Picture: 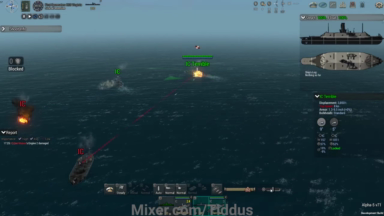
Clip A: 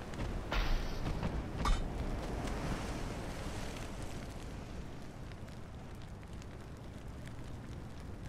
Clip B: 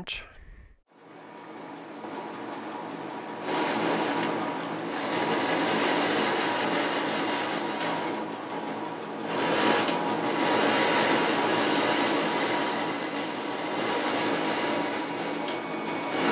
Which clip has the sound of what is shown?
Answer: A